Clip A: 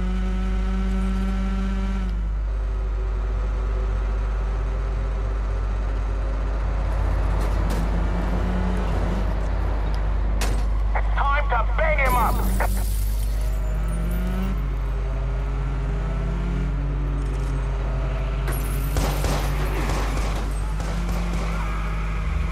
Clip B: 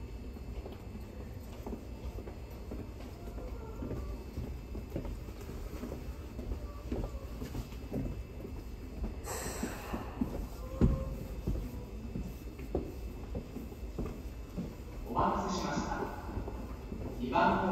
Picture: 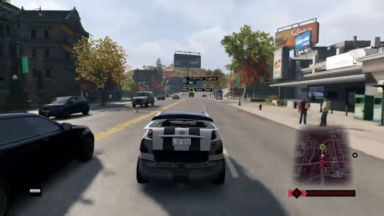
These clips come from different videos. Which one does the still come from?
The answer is A